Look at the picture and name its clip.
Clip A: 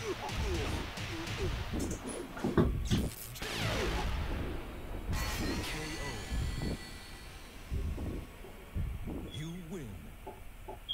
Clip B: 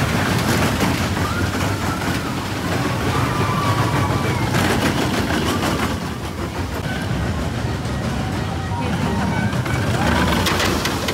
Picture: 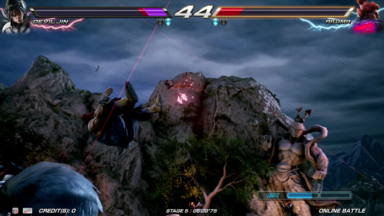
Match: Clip A